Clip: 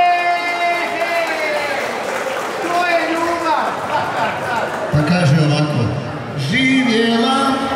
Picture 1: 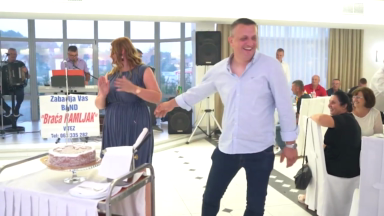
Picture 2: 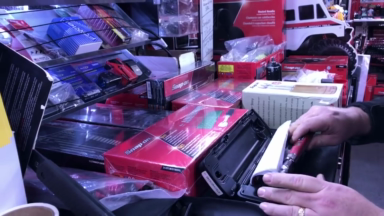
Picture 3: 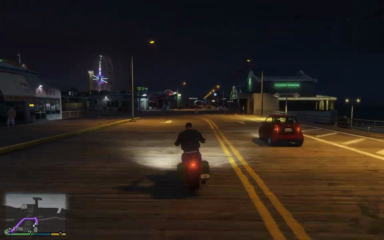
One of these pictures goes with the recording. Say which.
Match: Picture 1